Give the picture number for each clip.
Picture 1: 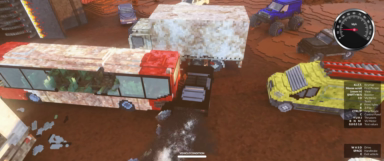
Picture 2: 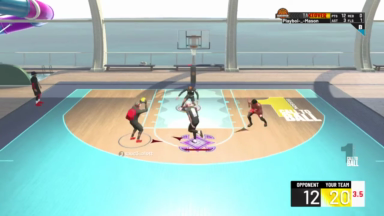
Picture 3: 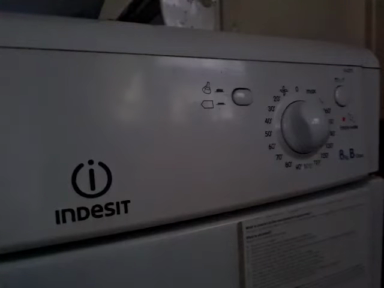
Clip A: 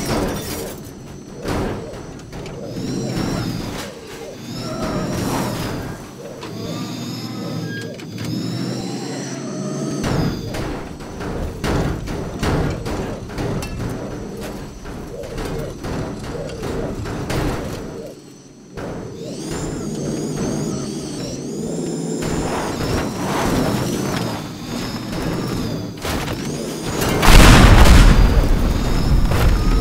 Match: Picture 1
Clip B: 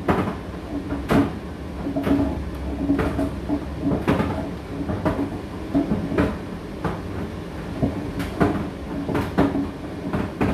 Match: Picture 3